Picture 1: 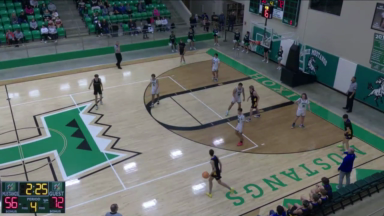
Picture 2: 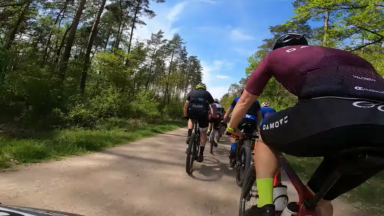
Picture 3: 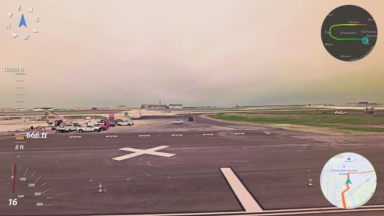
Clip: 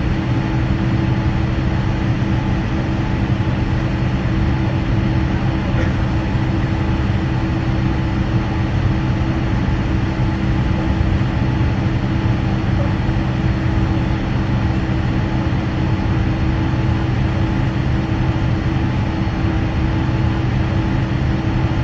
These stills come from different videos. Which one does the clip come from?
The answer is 3